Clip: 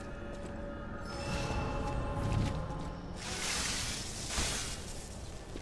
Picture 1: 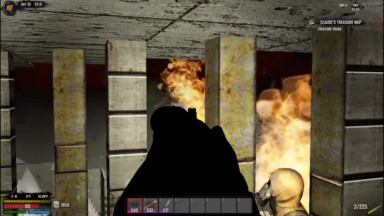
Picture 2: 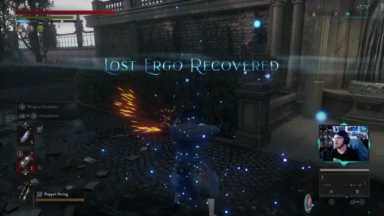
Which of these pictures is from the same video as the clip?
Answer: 2